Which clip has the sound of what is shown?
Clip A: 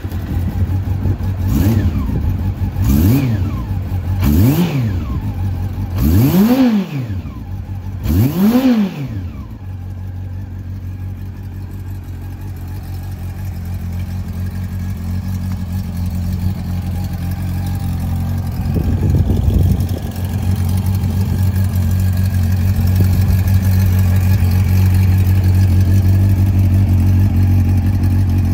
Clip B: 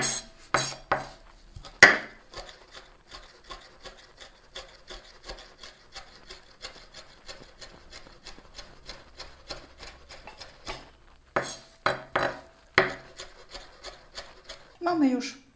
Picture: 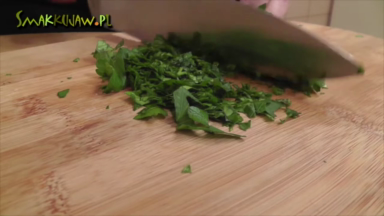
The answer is B